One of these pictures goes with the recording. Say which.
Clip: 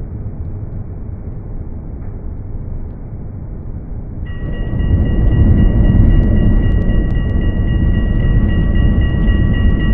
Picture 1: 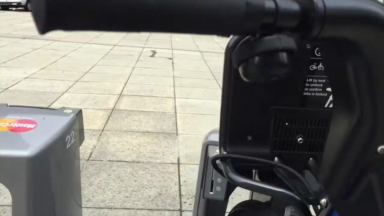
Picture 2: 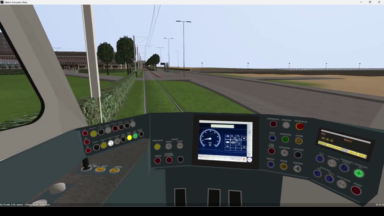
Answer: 2